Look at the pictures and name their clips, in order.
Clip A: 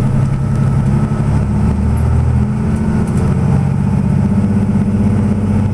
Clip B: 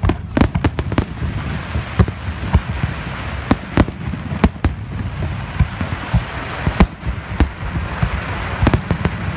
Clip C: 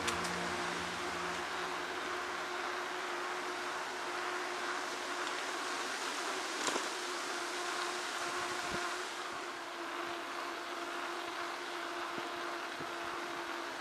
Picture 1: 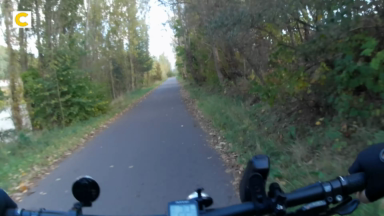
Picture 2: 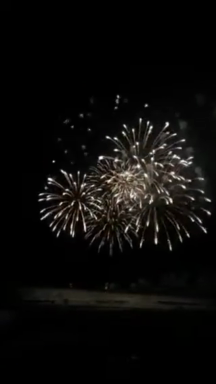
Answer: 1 C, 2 B